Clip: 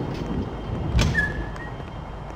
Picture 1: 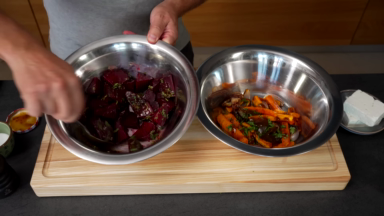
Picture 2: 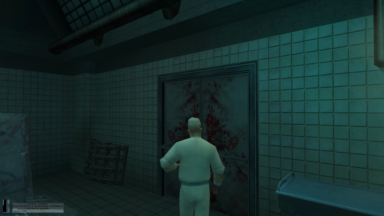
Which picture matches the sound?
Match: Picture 2